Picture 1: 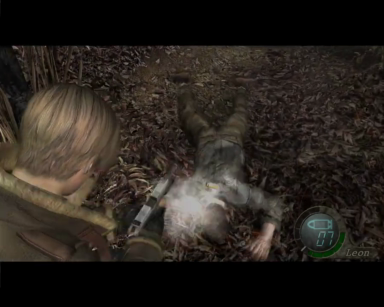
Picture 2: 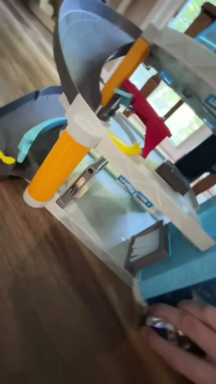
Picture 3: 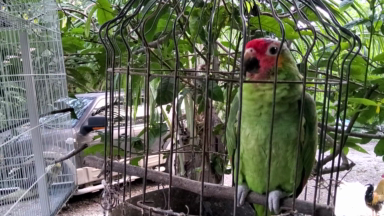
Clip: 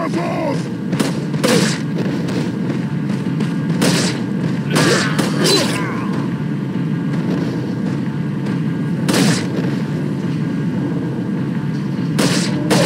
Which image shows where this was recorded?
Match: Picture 1